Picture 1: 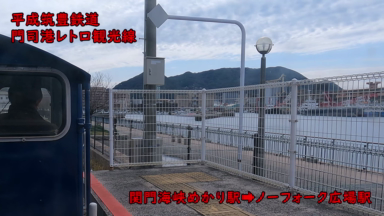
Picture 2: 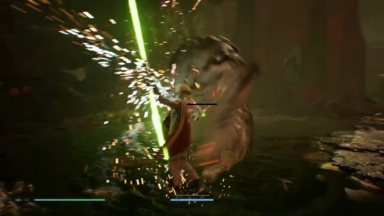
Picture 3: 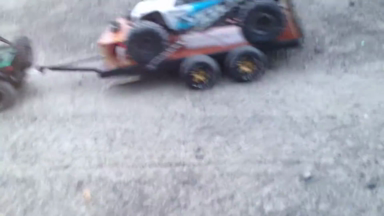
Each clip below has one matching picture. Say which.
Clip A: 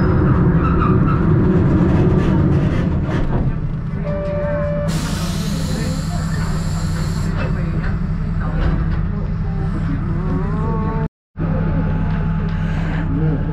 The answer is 1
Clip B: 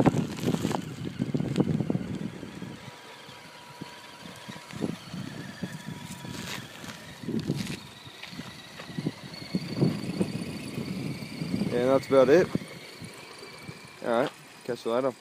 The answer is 3